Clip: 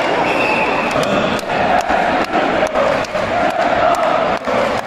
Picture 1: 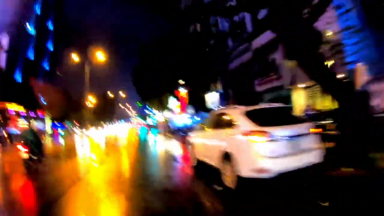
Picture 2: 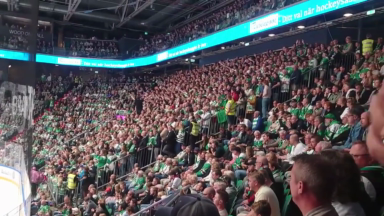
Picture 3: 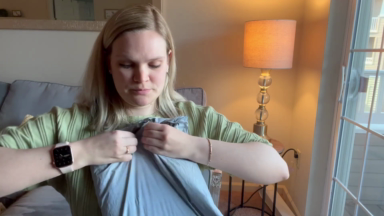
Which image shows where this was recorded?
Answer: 2